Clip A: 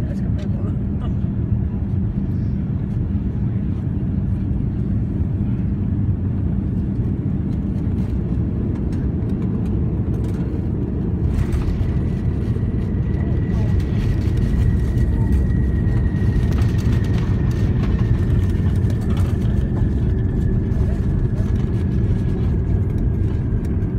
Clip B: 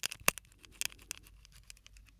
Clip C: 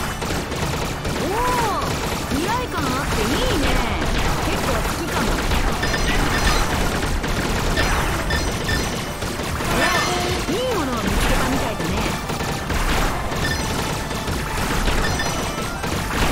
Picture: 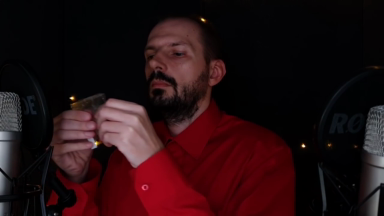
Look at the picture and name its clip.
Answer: B